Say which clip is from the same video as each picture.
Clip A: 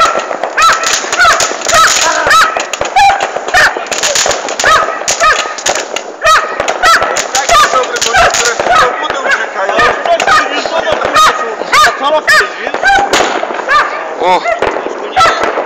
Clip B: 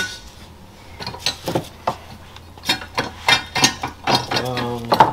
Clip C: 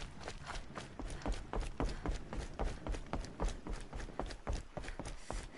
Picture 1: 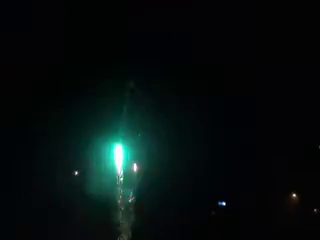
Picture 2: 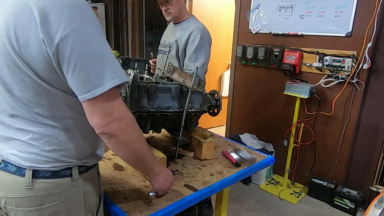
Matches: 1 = A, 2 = B